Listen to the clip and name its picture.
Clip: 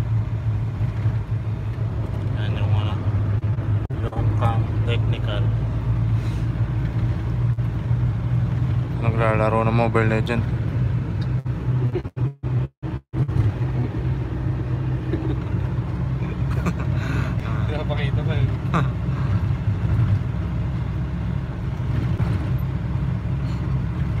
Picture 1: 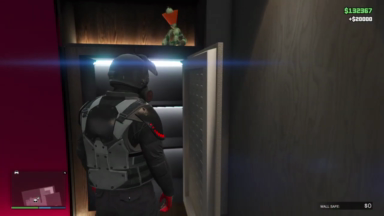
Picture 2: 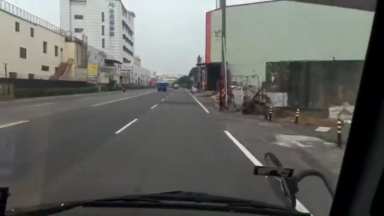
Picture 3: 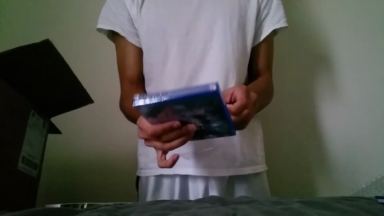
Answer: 2